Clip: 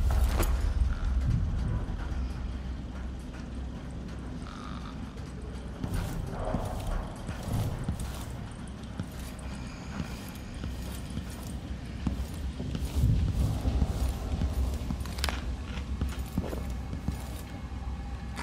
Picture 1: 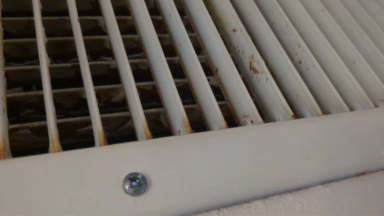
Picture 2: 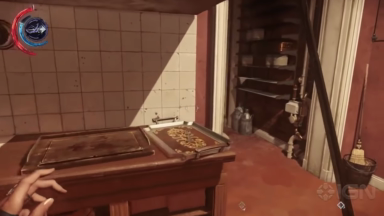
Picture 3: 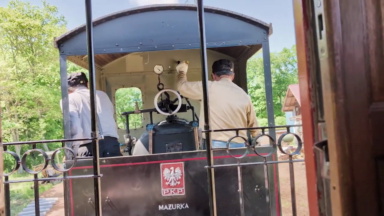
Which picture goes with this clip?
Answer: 2